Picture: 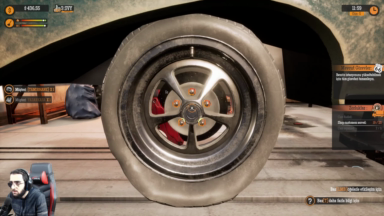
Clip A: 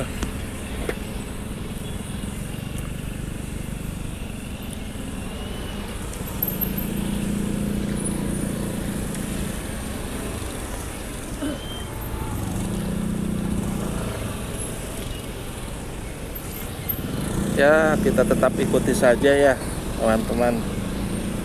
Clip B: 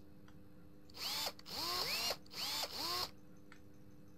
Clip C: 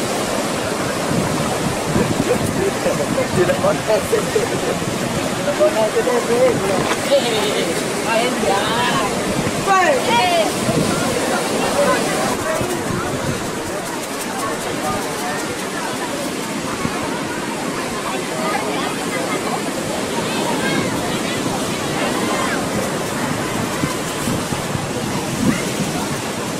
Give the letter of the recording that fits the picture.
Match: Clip B